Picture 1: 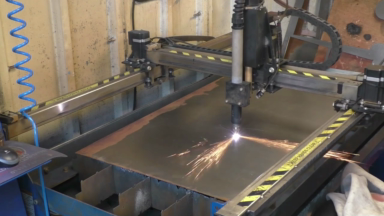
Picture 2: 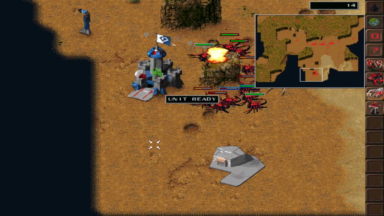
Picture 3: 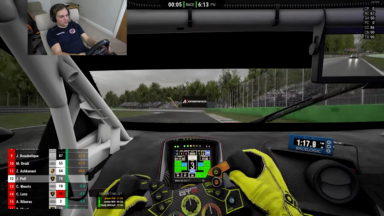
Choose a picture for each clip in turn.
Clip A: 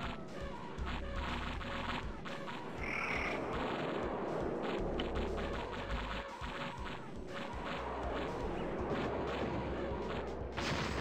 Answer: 2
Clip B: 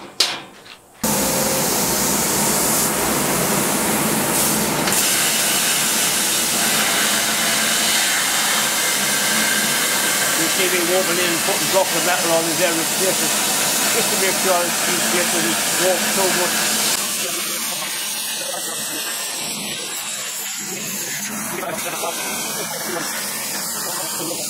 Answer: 1